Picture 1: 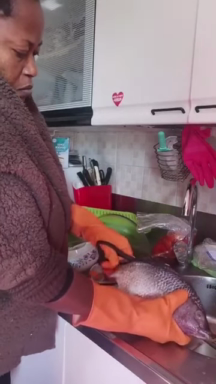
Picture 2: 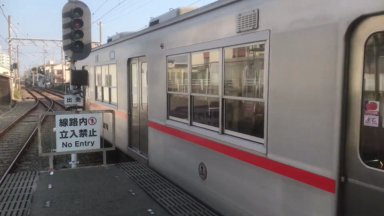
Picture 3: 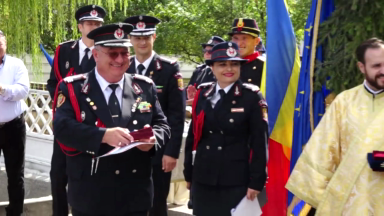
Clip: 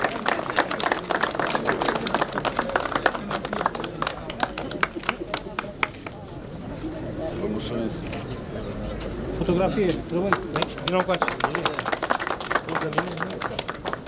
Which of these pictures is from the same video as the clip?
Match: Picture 3